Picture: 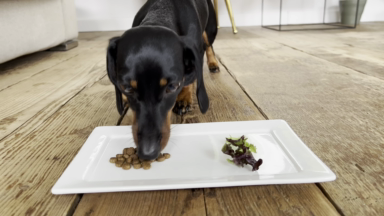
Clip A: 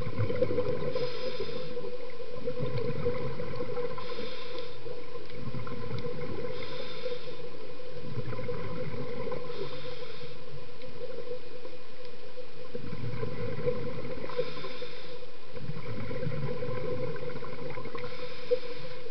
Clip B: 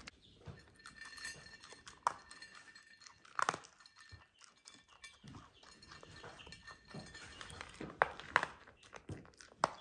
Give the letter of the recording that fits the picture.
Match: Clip B